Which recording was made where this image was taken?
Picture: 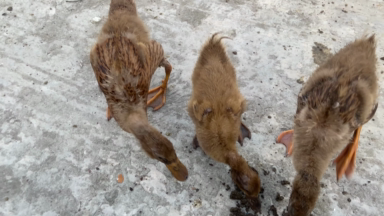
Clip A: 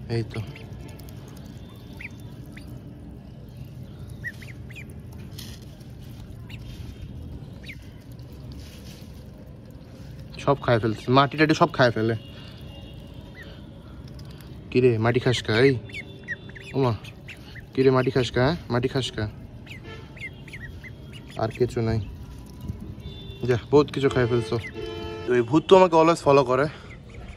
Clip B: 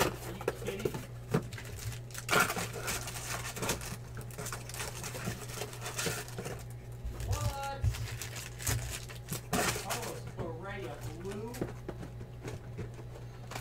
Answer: A